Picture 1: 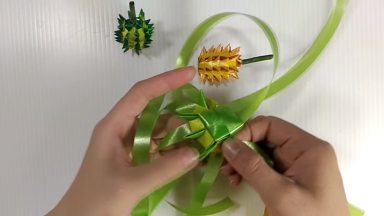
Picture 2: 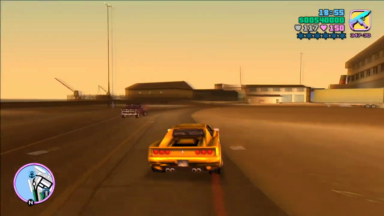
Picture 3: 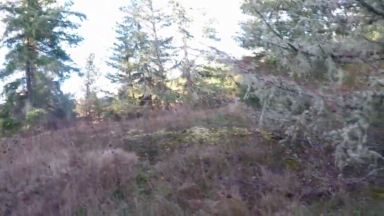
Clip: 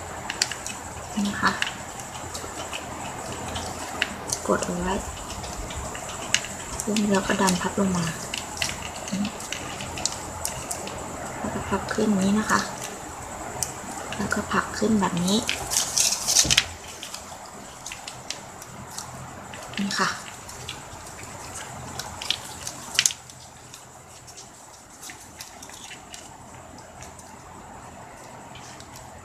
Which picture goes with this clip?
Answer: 1